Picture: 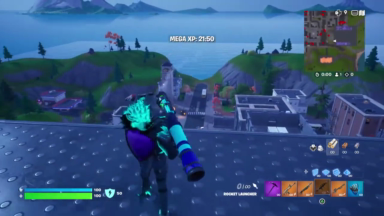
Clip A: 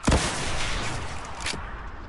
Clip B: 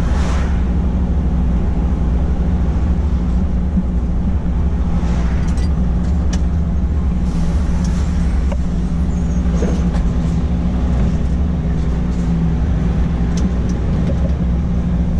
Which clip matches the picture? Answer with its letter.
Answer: A